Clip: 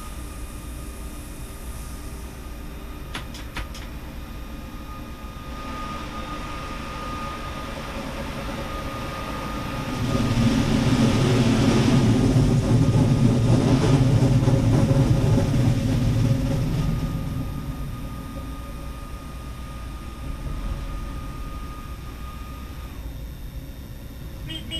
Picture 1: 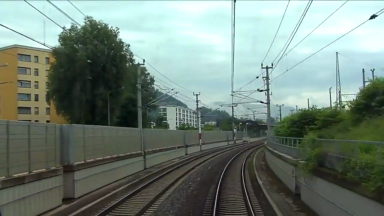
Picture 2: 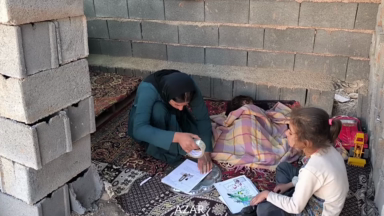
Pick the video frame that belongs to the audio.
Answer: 1